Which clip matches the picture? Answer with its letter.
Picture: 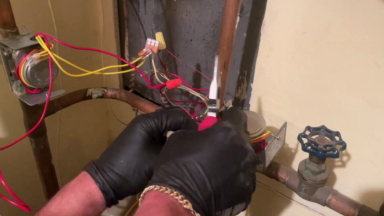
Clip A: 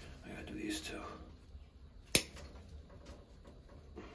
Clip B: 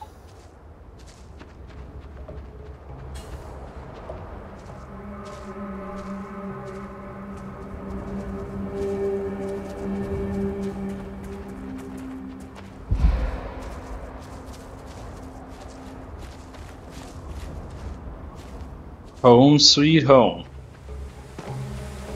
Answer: A